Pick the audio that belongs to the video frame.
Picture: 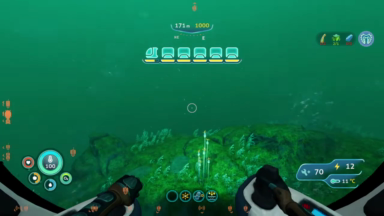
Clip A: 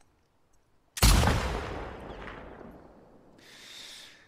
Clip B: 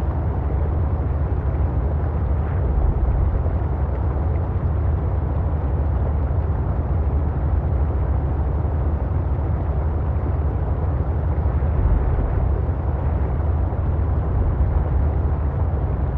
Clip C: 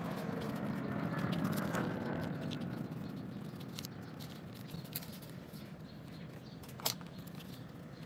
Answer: B